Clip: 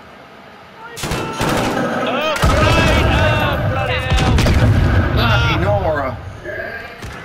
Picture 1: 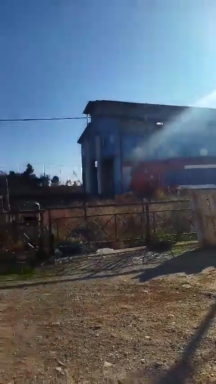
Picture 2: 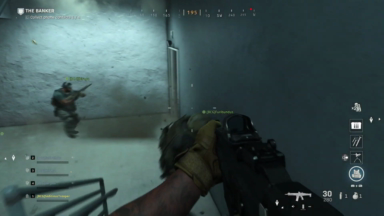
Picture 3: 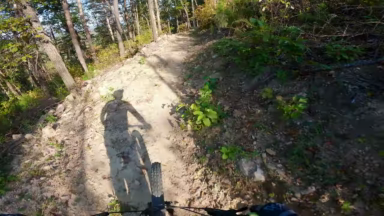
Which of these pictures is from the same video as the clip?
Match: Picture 2